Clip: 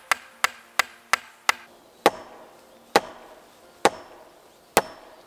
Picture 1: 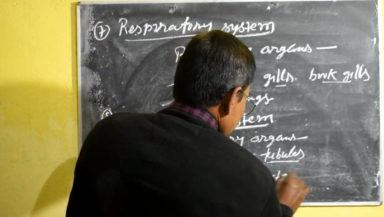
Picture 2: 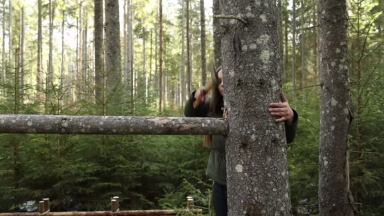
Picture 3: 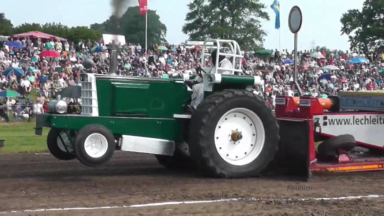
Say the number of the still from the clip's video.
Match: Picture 2